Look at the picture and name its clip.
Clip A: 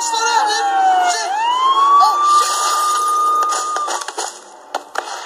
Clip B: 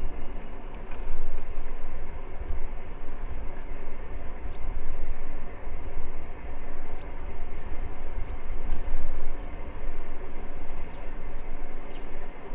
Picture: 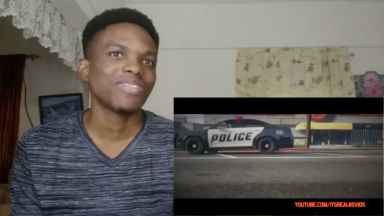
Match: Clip A